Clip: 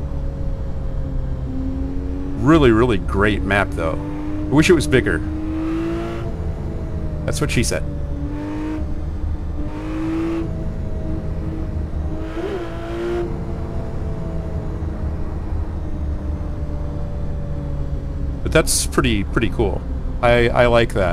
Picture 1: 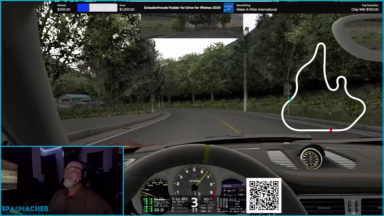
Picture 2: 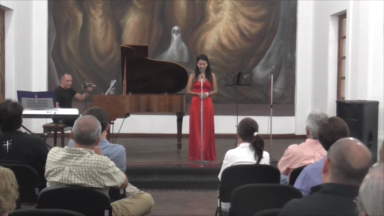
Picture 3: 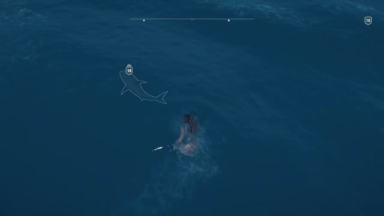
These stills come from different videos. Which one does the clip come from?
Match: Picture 1